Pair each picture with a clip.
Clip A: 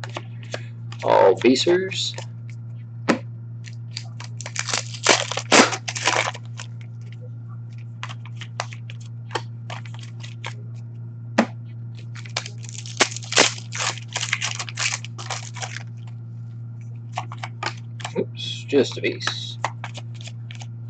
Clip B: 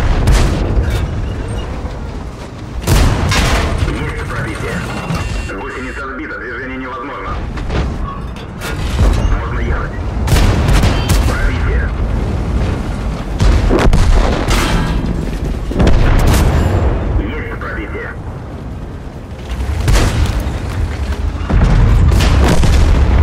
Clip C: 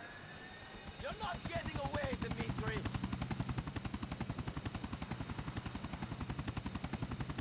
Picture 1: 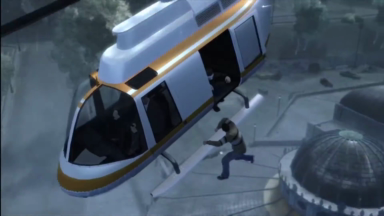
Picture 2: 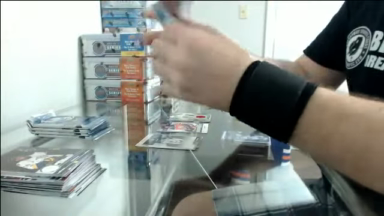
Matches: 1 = C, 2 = A